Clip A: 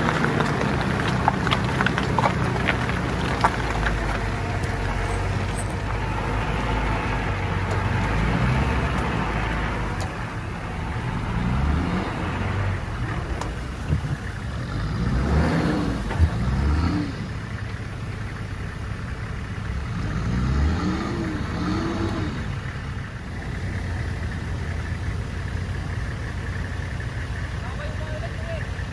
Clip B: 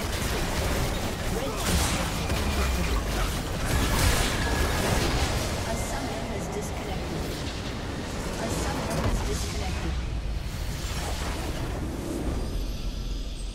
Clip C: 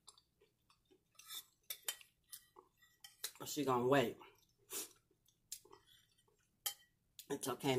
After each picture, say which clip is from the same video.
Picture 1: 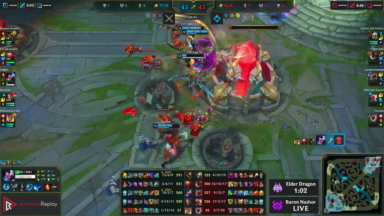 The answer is B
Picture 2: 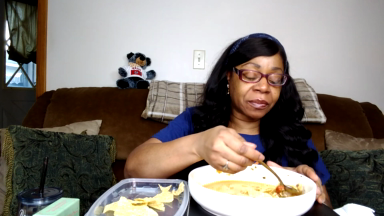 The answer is C